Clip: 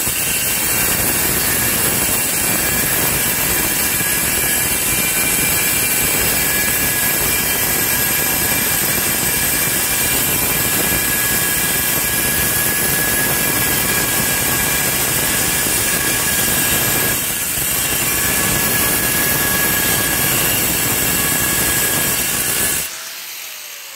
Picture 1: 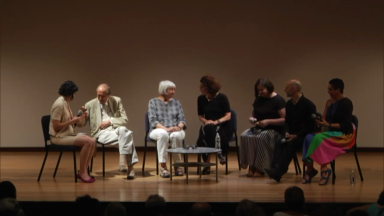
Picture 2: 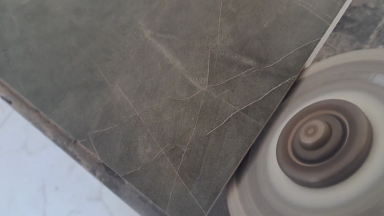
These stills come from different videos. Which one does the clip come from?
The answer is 2